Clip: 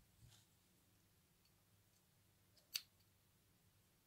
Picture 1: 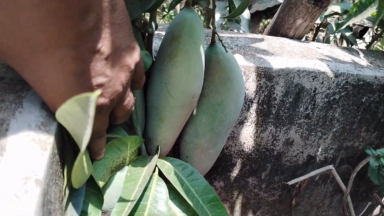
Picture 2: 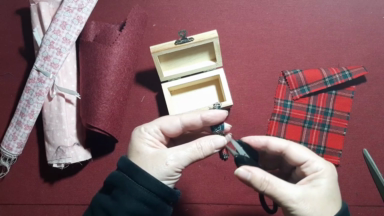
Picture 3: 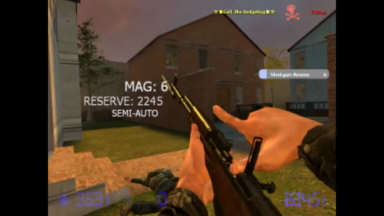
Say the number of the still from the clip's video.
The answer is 2